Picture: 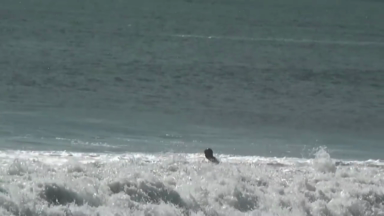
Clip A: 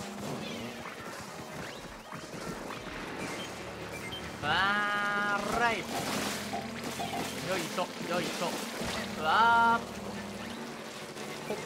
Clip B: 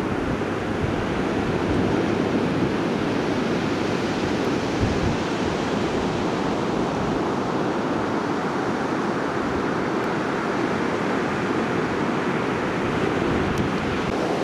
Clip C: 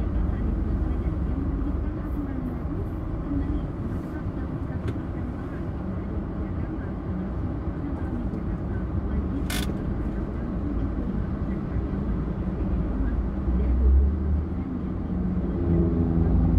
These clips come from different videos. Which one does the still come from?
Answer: B